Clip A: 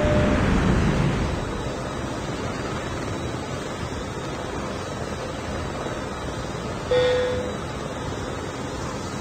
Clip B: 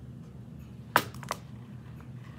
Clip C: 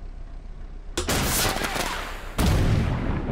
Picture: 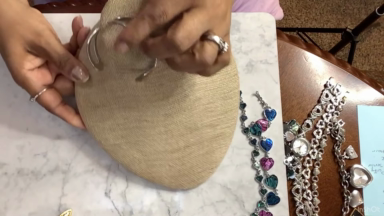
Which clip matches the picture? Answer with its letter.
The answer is B